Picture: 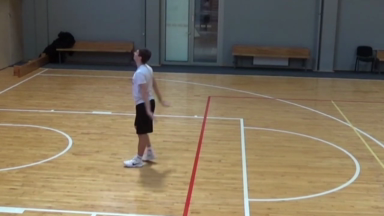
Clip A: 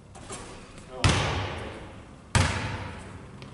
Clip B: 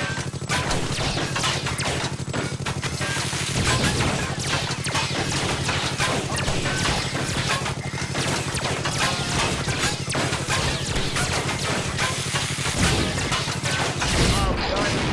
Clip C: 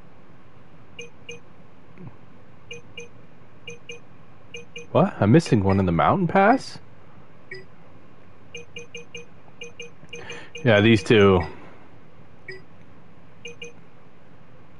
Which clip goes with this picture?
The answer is A